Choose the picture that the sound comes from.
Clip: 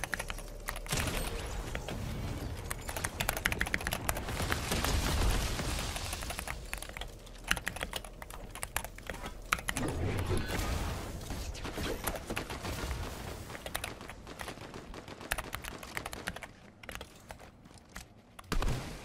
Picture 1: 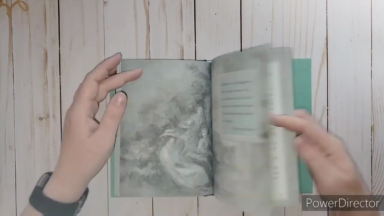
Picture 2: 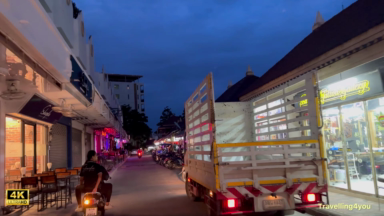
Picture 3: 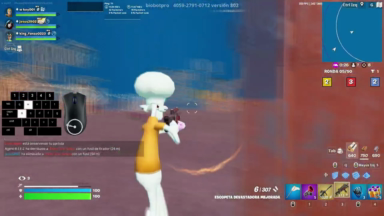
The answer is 3